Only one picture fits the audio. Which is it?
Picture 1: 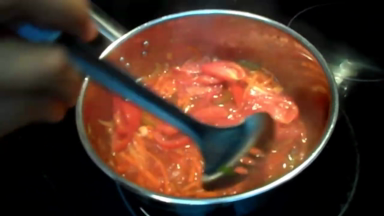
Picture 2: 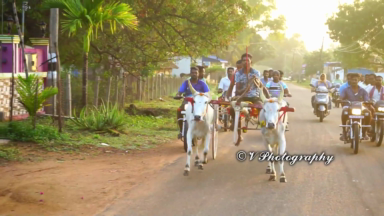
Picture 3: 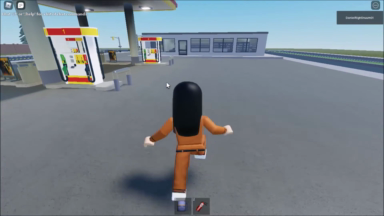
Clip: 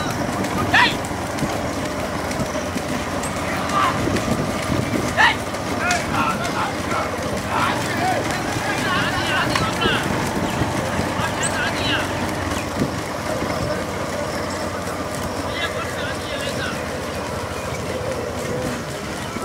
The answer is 2